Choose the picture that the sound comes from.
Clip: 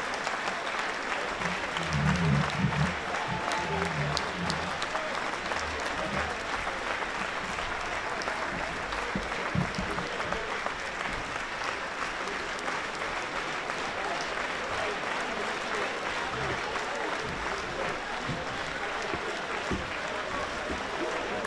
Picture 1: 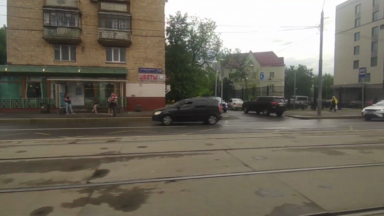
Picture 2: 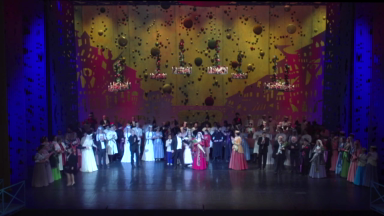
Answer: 2